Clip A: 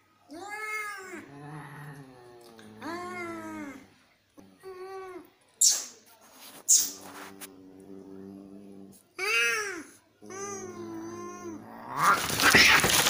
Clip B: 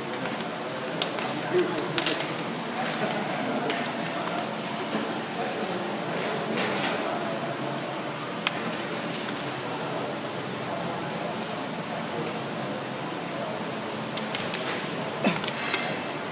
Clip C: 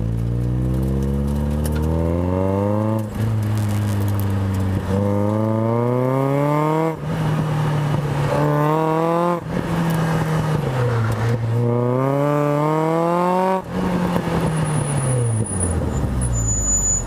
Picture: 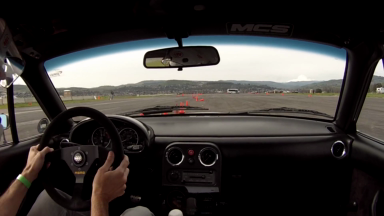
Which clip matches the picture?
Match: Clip C